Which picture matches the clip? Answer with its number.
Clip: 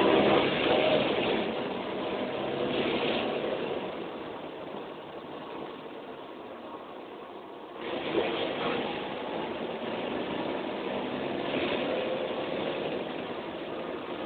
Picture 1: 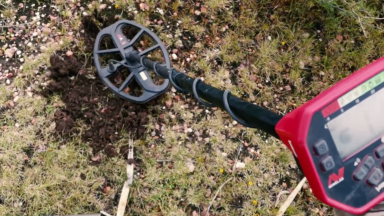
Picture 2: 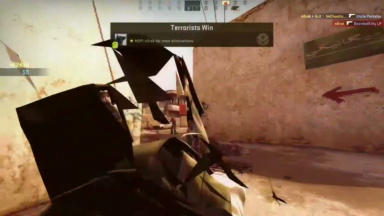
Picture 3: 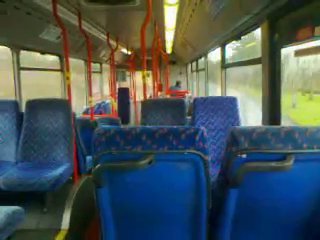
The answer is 3